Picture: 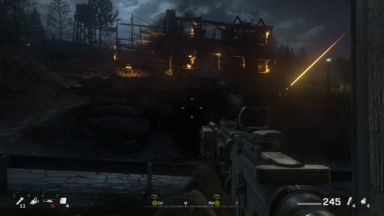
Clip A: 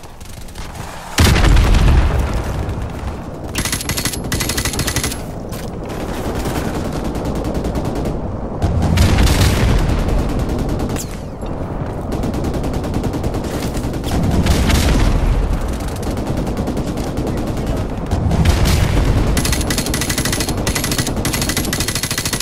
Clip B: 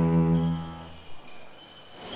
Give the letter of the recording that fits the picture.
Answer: A